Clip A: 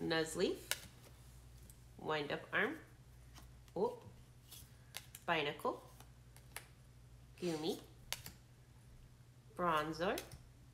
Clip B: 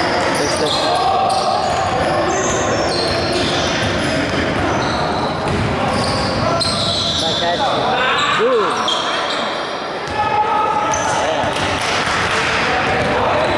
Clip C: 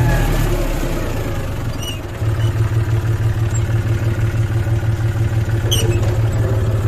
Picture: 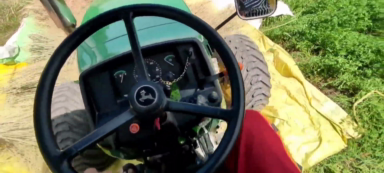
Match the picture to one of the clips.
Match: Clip C